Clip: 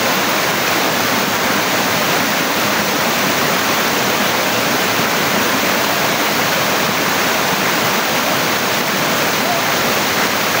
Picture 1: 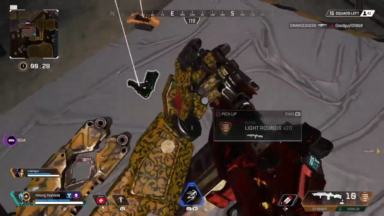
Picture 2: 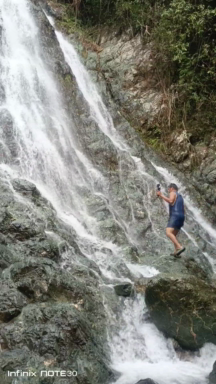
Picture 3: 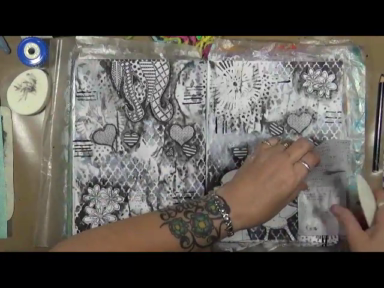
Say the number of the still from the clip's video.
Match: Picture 2